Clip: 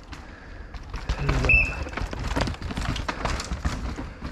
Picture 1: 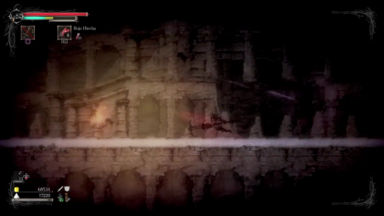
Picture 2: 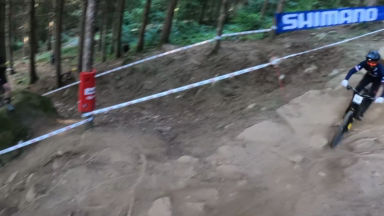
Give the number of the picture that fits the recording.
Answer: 2